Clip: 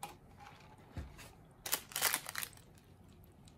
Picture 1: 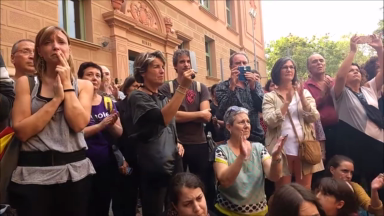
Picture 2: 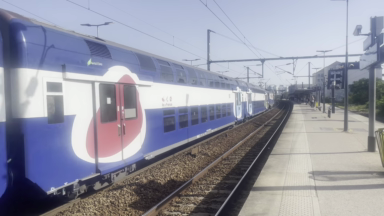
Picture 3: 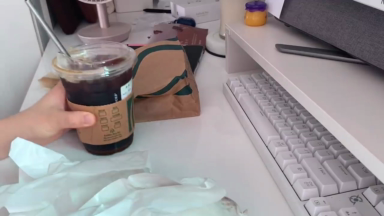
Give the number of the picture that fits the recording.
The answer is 3